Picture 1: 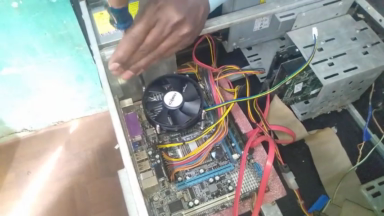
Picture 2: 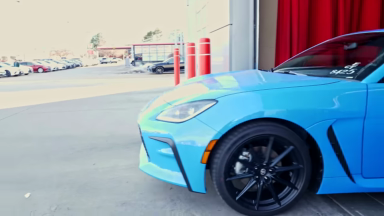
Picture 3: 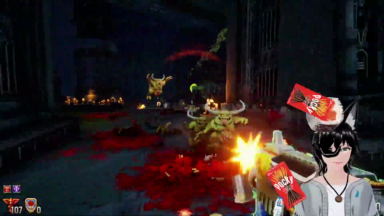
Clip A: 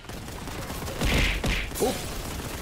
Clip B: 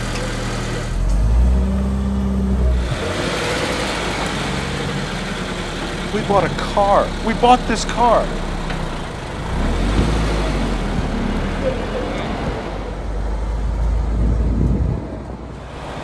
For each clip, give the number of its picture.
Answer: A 3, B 2